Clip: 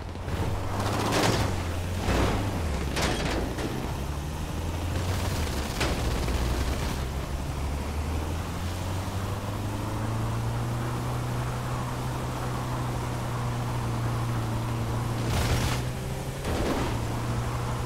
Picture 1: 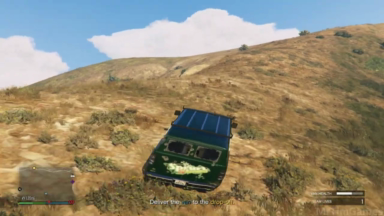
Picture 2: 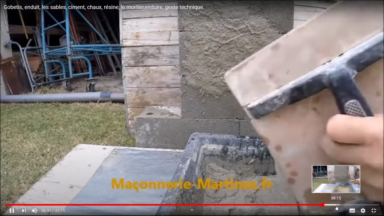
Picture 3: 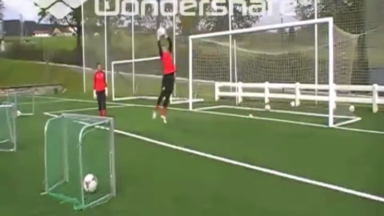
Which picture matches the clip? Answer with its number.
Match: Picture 1